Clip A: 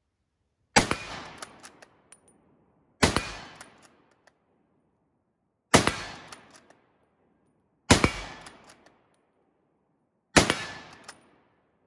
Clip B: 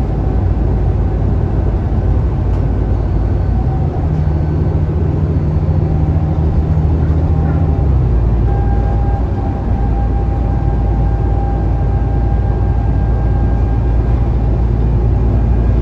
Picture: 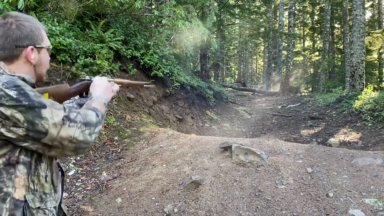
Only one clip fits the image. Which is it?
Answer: A